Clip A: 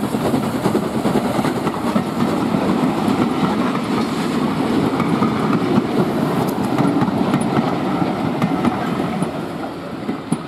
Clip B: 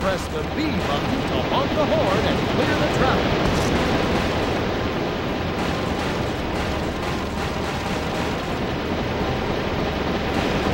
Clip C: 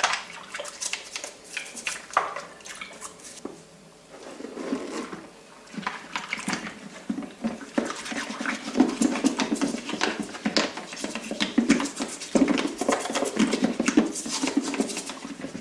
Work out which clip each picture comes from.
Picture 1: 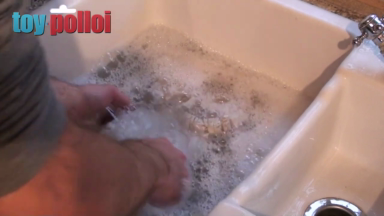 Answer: C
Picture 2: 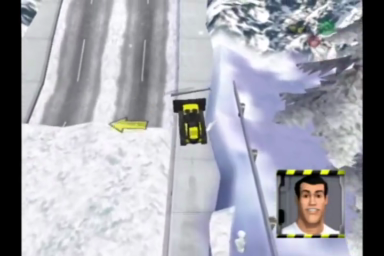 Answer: B